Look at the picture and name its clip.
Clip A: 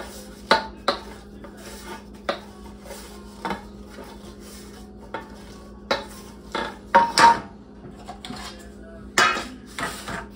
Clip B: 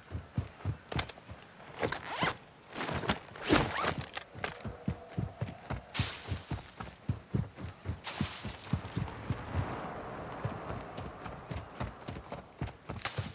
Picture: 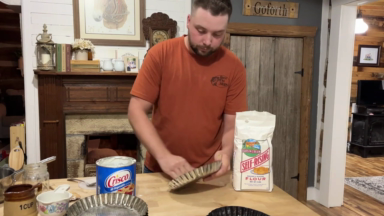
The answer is A